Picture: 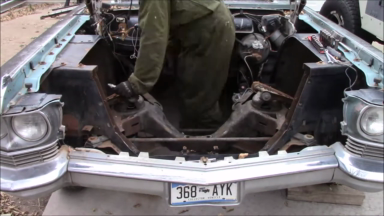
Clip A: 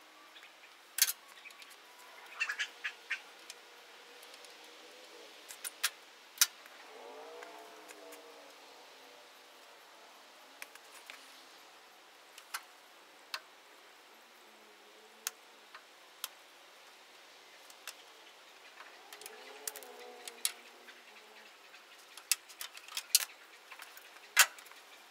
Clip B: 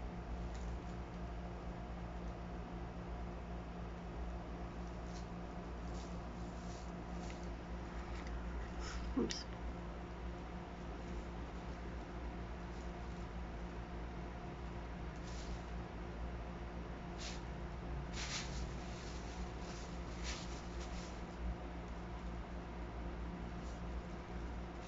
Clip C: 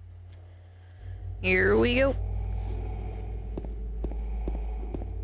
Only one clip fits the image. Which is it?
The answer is A